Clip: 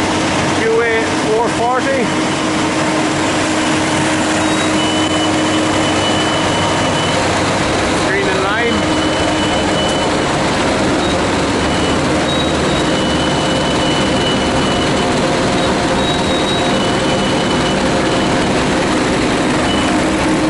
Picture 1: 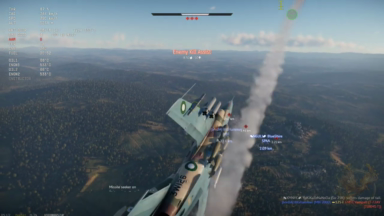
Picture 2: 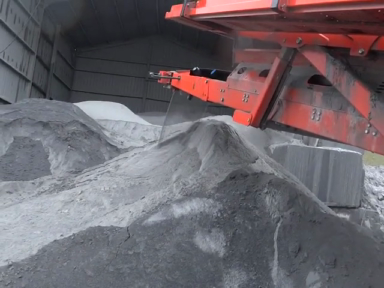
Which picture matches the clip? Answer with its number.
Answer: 2